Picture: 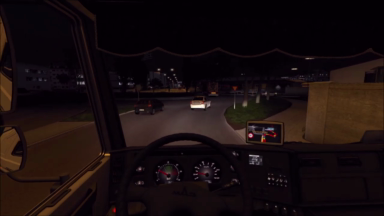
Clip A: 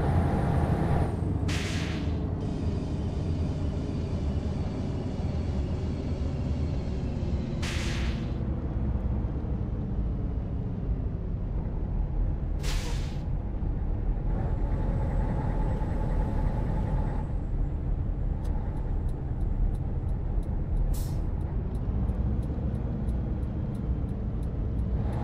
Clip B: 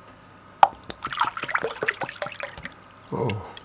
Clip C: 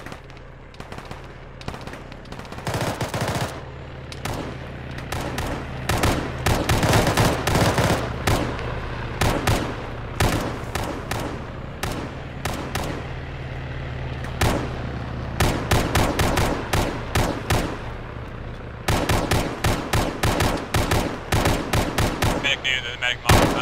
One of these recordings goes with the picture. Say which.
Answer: A